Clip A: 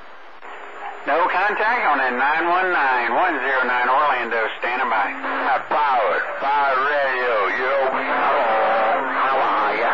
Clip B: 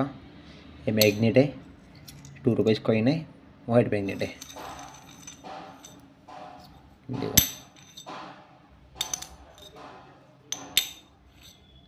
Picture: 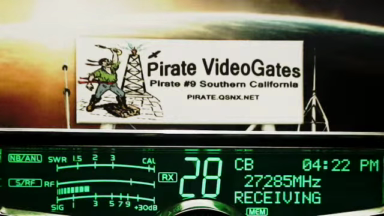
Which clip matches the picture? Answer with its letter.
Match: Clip A